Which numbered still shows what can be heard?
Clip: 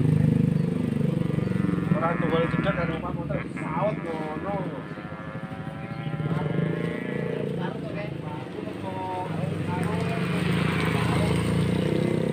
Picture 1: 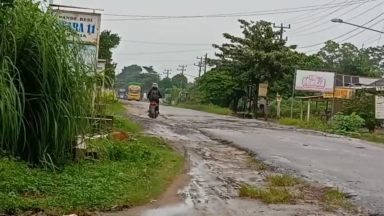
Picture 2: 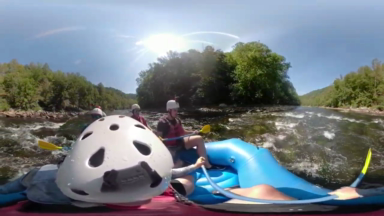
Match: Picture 1